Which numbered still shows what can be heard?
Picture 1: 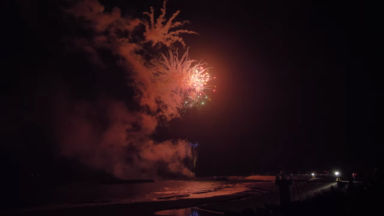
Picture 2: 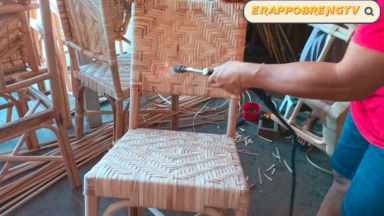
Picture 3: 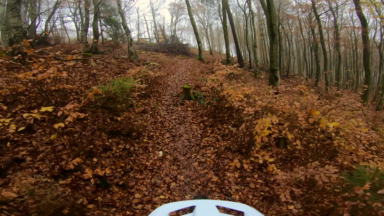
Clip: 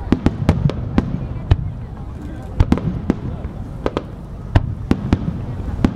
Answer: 1